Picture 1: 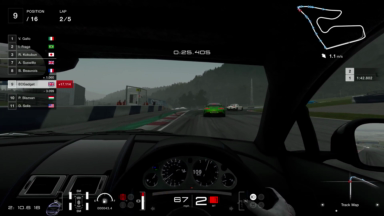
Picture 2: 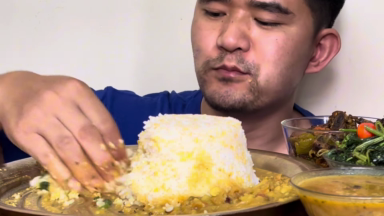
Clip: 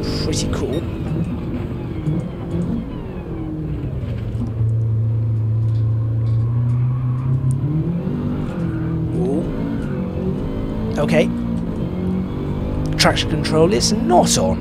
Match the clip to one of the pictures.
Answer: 1